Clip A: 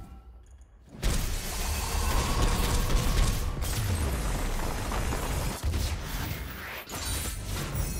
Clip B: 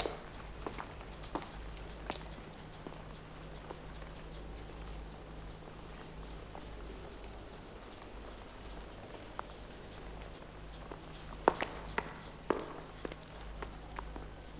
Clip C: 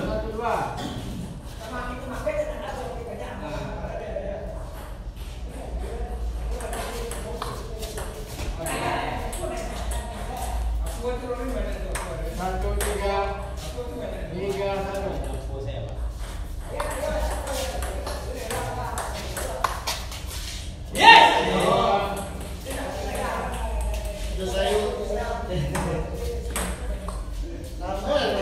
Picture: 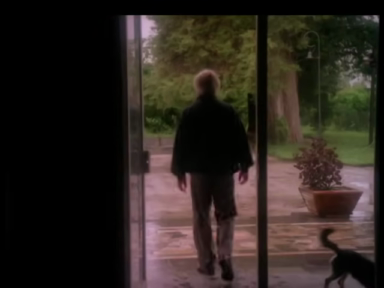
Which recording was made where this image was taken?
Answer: B